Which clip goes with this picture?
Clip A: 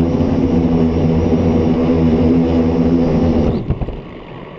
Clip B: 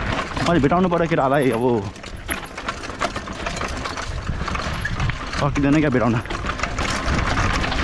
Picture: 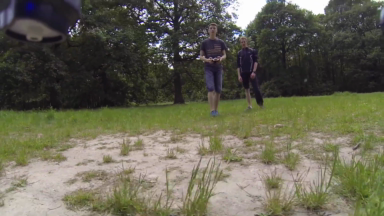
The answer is A